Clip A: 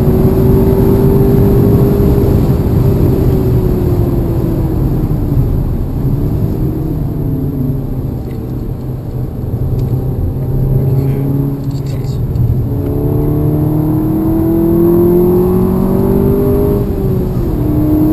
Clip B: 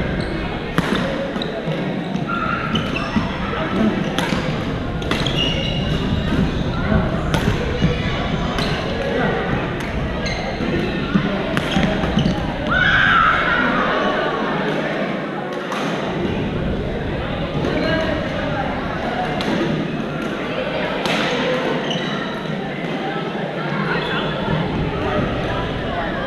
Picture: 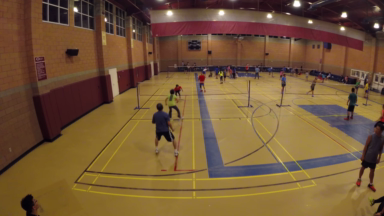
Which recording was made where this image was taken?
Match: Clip B